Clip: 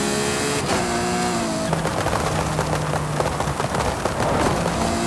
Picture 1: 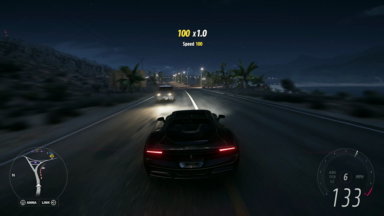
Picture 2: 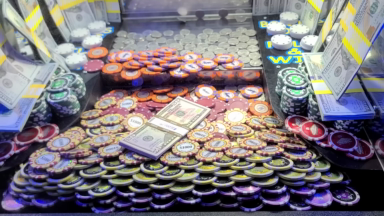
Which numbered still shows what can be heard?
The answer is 1